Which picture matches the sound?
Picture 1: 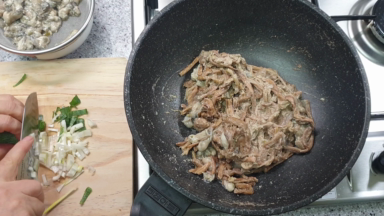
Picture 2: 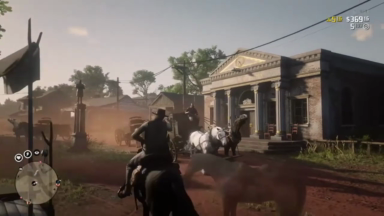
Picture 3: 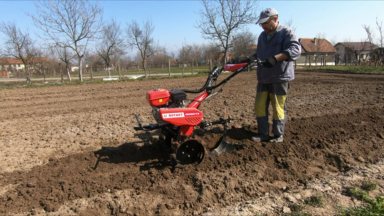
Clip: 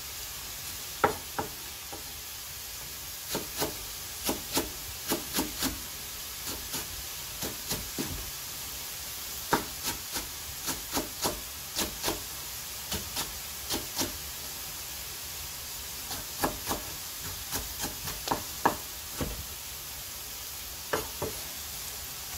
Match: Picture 1